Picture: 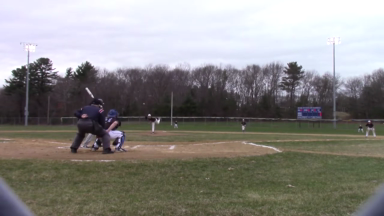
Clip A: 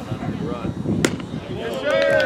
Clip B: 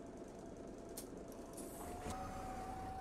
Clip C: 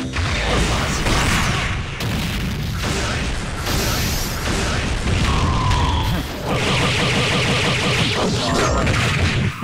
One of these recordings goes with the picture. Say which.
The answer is A